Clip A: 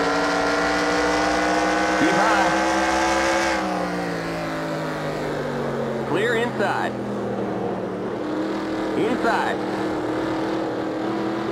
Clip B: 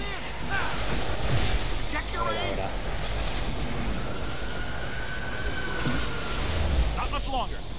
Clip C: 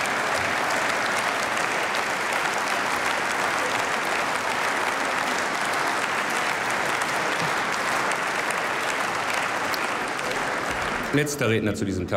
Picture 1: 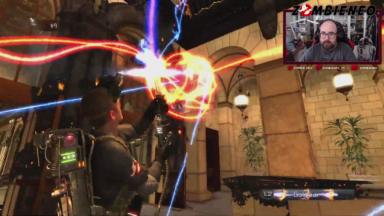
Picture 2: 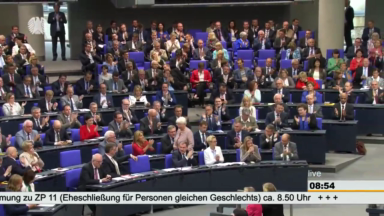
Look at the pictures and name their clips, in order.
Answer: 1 B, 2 C